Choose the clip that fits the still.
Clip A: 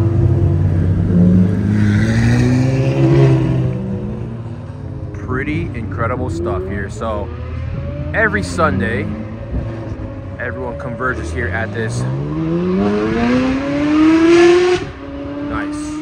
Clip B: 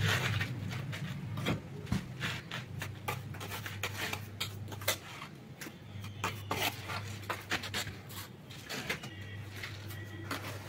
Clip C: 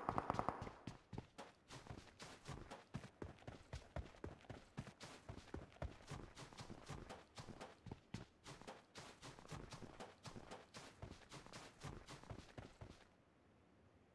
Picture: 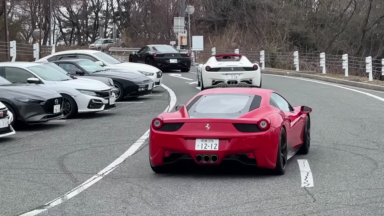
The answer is A